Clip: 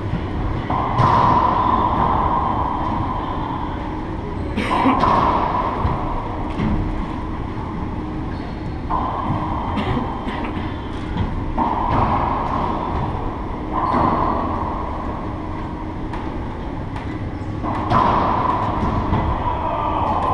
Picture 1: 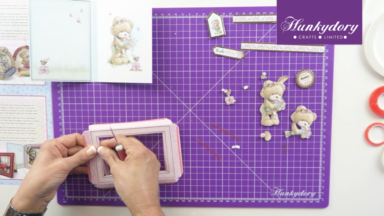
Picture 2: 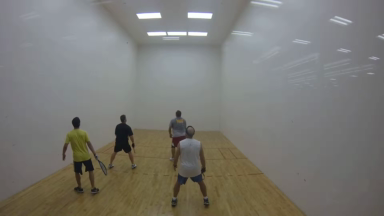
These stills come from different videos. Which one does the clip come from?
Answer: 2